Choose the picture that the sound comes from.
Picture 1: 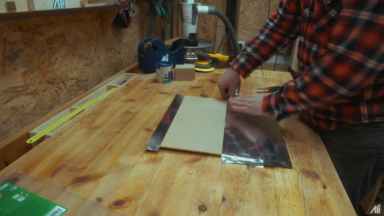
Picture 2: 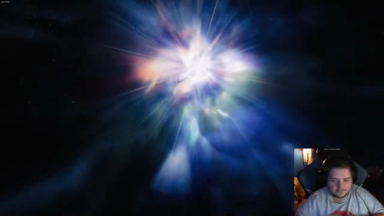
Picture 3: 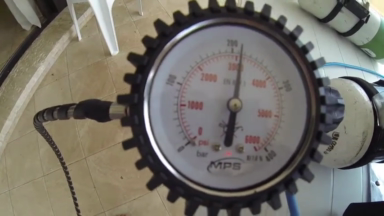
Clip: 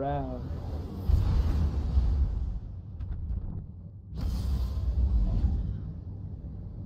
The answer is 2